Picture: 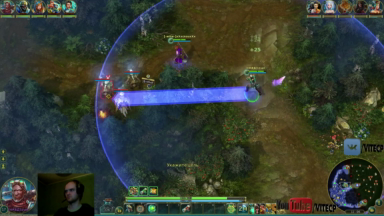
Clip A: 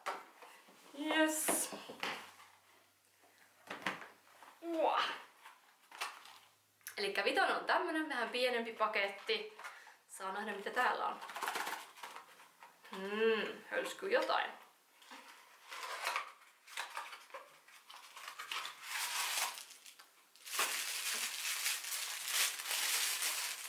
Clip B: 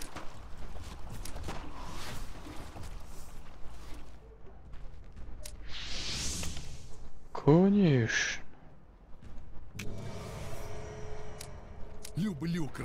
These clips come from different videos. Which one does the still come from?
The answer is B